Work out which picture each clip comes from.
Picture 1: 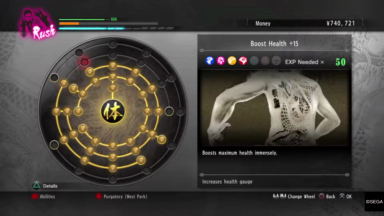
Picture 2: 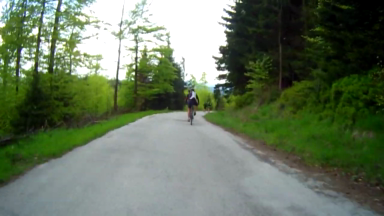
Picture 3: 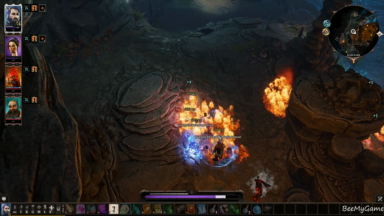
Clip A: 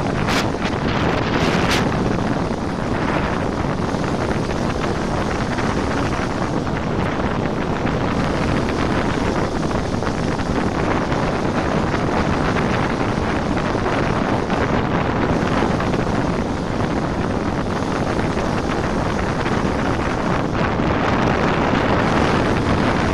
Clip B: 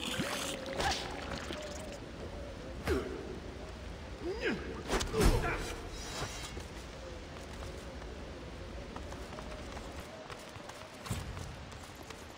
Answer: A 2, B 3